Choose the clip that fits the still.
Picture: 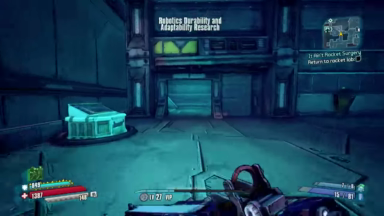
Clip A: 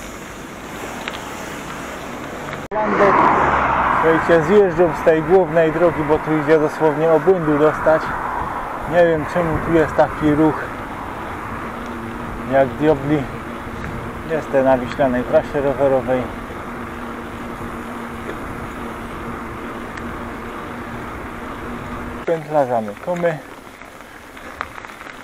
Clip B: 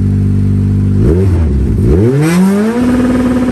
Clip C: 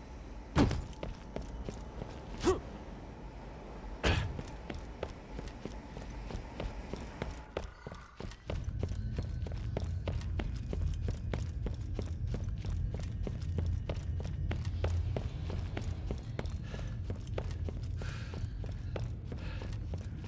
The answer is C